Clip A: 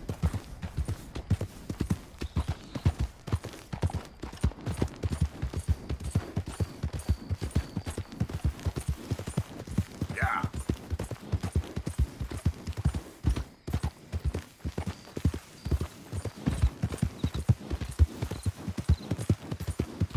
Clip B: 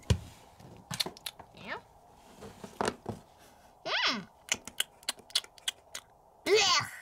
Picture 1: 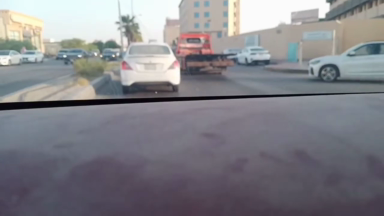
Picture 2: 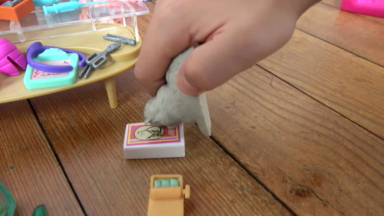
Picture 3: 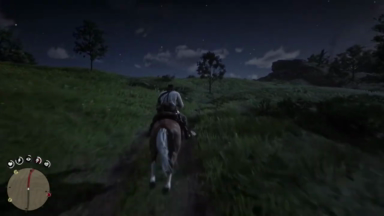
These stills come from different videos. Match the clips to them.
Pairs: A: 3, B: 2